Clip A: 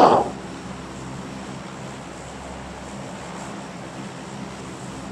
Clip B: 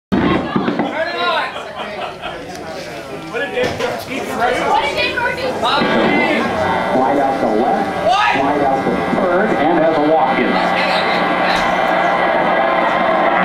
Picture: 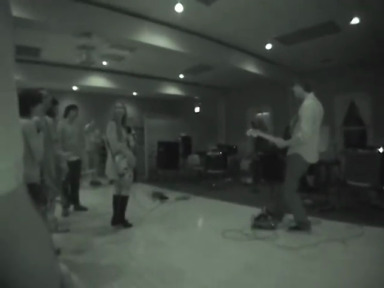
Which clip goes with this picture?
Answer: B